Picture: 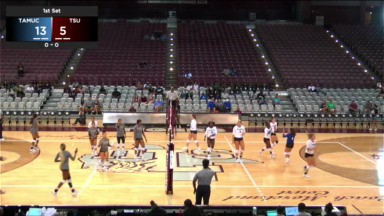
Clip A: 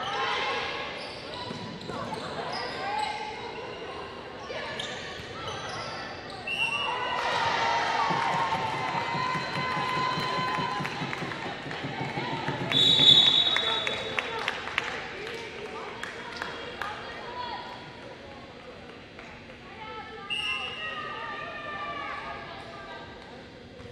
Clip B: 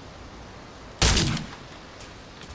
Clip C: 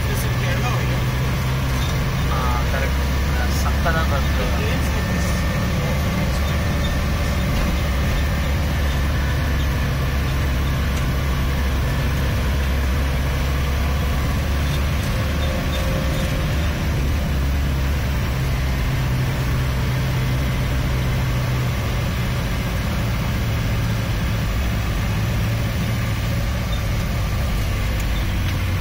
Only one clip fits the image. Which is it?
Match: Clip A